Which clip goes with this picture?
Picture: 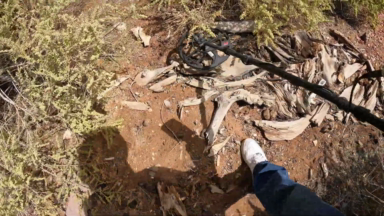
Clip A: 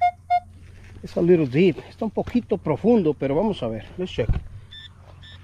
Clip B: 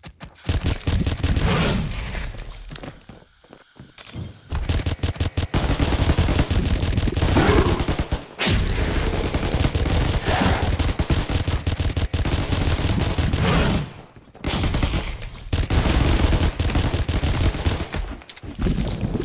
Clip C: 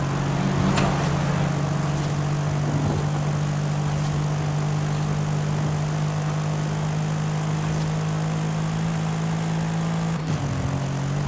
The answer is A